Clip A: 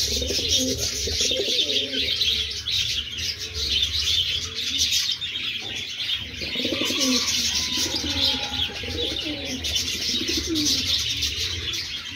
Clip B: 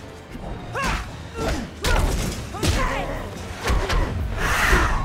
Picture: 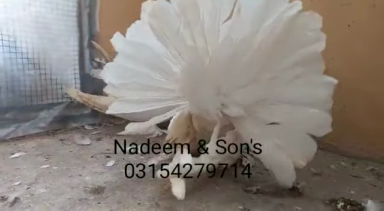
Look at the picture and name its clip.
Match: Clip A